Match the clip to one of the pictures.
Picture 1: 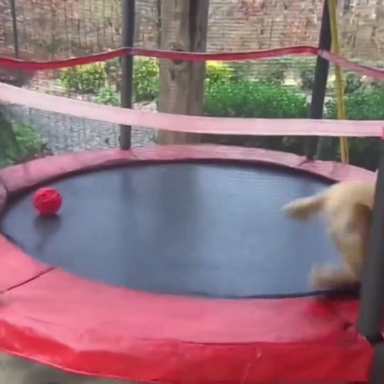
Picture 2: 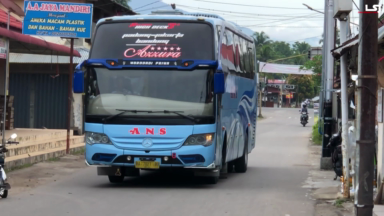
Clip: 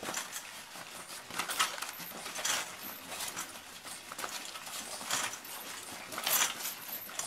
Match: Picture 1